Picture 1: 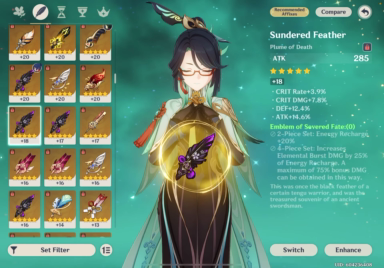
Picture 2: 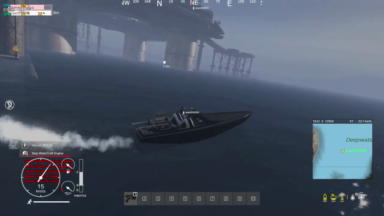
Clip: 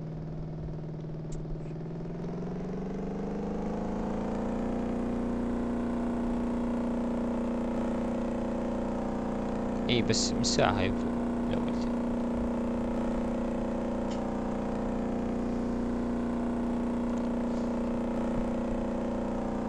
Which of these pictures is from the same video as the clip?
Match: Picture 2